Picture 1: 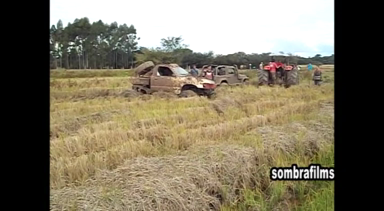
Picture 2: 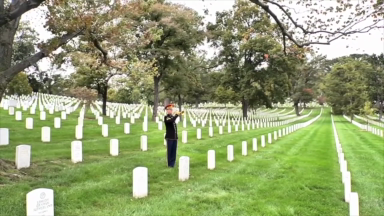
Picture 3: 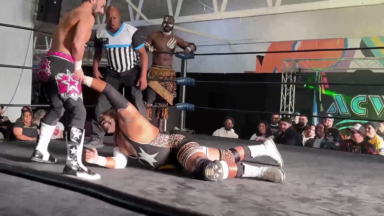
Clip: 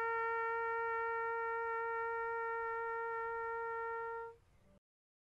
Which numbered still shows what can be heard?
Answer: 2